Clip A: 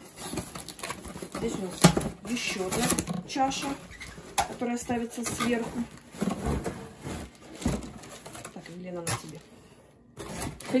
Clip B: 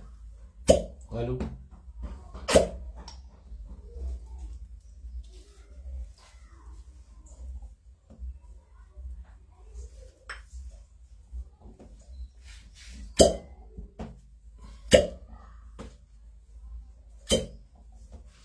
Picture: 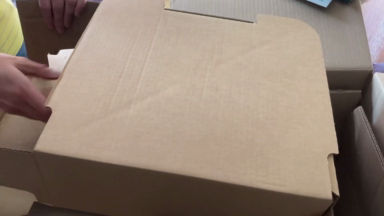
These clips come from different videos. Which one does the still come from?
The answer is A